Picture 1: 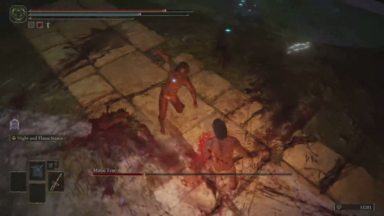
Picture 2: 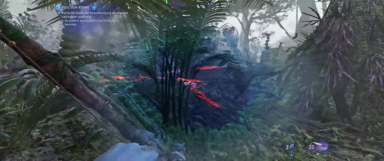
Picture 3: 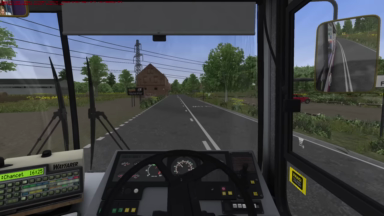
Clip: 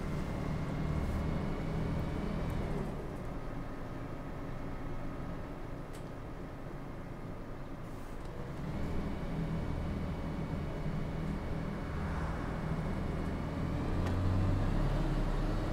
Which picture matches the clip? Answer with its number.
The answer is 3